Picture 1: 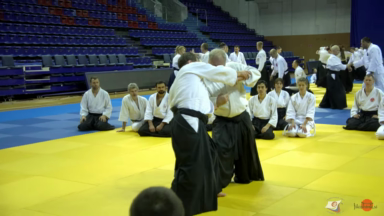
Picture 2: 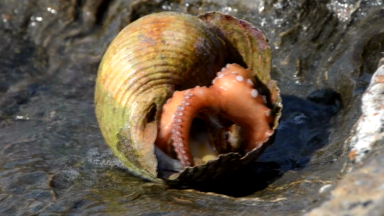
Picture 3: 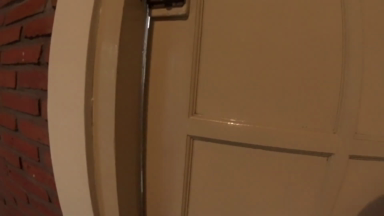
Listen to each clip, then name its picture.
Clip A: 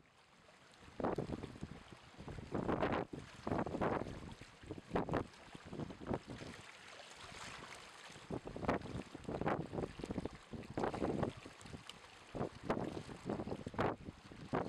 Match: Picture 2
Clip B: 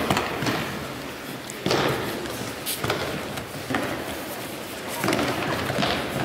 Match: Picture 1